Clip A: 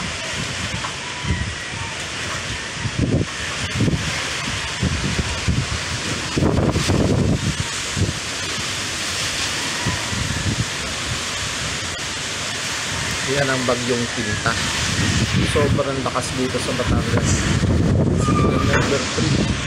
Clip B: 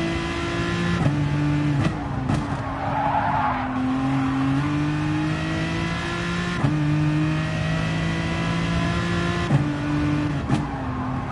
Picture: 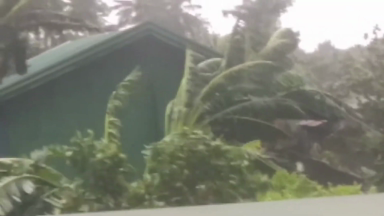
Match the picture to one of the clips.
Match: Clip A